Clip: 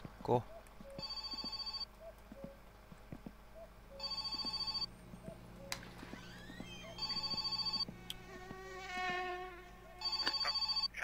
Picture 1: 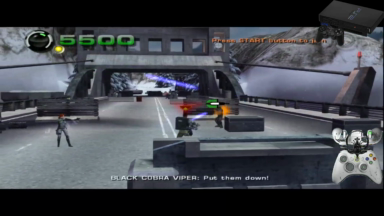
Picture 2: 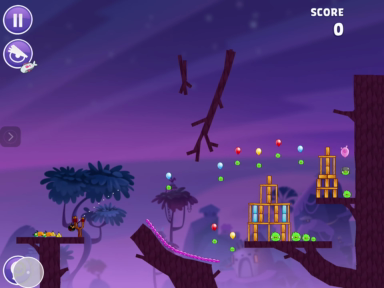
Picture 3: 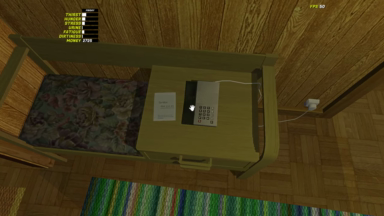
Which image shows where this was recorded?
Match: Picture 3